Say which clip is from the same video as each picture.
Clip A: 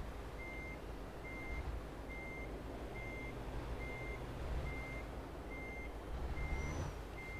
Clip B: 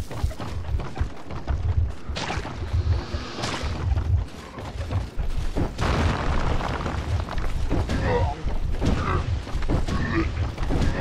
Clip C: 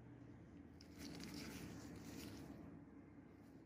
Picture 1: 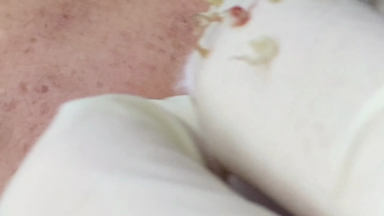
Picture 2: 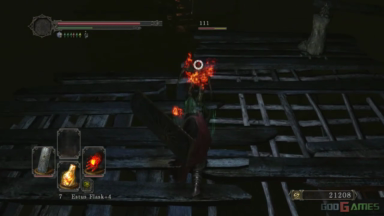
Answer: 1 C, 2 B